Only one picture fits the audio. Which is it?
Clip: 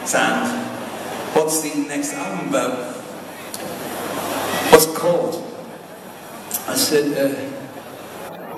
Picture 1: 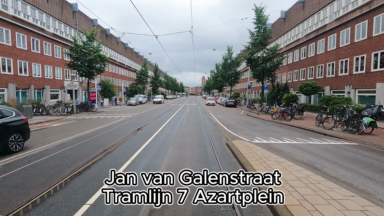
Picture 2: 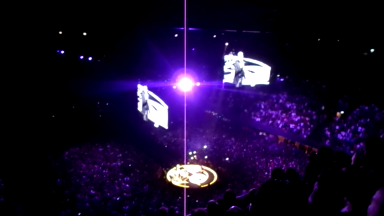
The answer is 2